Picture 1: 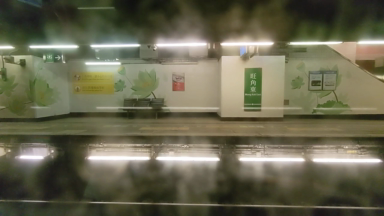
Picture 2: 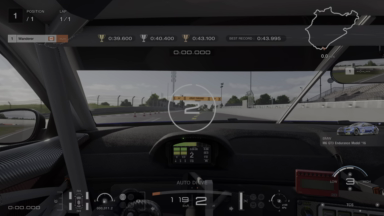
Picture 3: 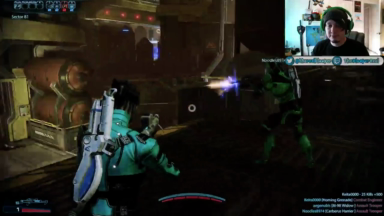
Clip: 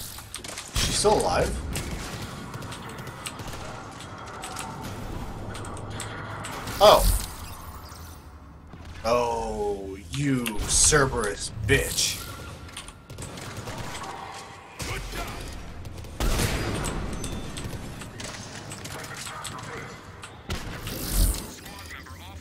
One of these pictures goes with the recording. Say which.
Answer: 3